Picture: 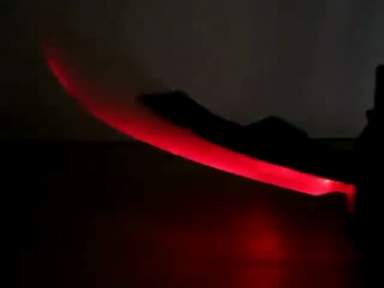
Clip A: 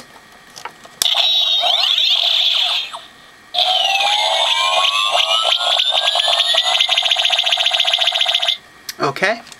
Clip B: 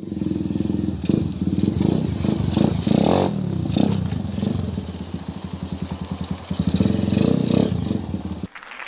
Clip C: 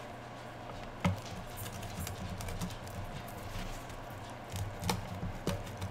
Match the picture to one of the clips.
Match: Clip A